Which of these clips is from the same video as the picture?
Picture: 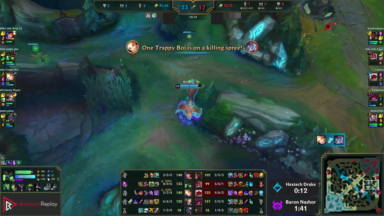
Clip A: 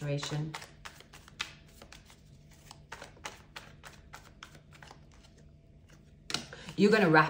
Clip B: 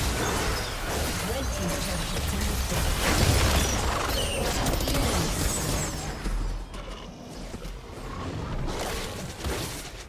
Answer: B